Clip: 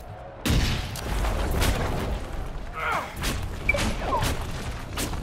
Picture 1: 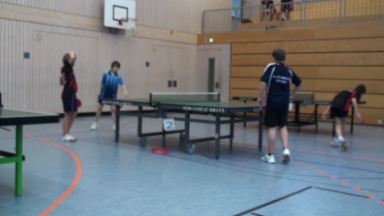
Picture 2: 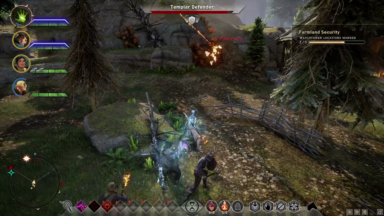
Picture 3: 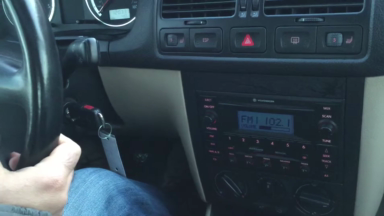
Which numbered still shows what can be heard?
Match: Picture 2